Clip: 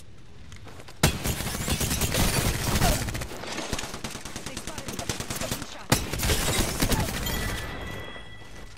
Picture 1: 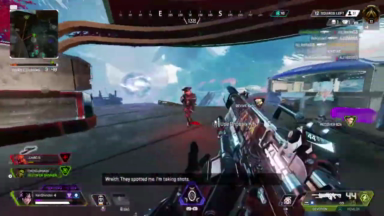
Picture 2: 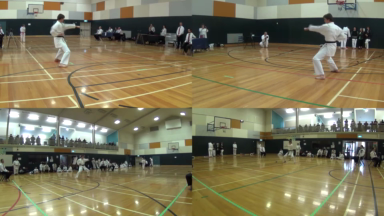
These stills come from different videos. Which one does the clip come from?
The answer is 1